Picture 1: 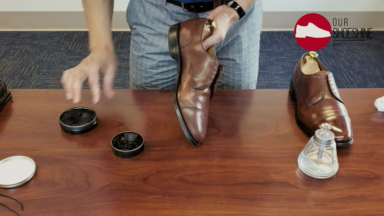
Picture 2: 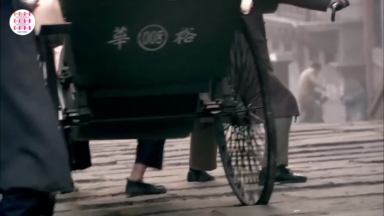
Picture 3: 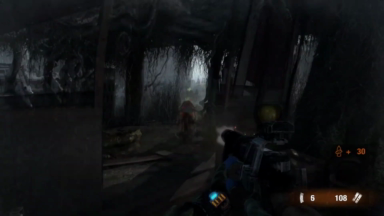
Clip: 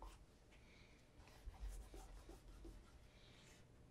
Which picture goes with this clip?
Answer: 1